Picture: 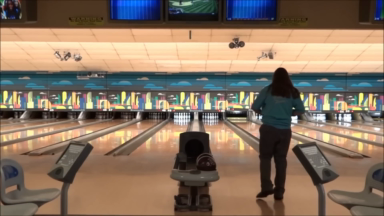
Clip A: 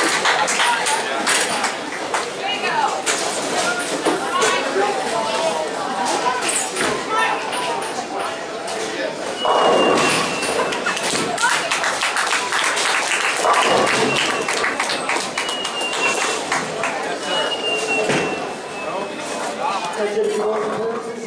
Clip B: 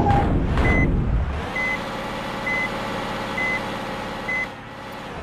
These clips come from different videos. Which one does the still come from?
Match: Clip A